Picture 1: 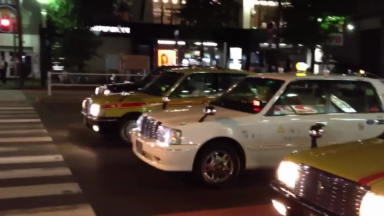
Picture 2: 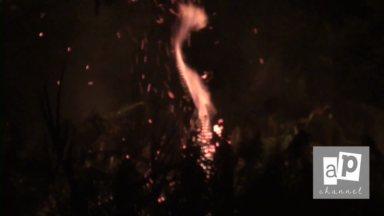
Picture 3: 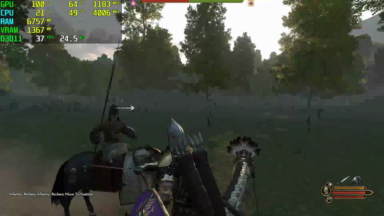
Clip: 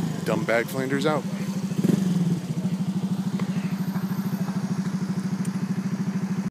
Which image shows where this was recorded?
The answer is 1